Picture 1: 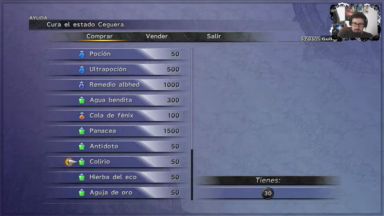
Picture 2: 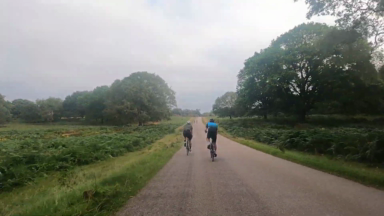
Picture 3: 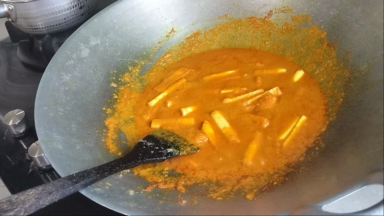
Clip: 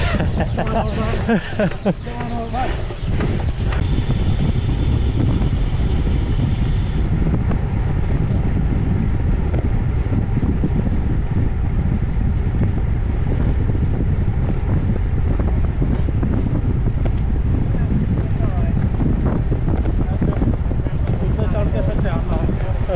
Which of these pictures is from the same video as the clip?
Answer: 2